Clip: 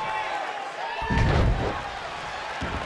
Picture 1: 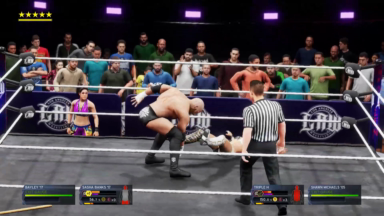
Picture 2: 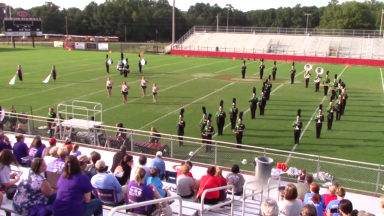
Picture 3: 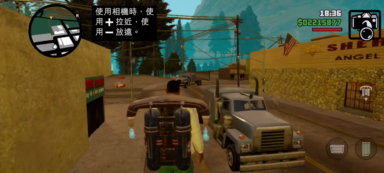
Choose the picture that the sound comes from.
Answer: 1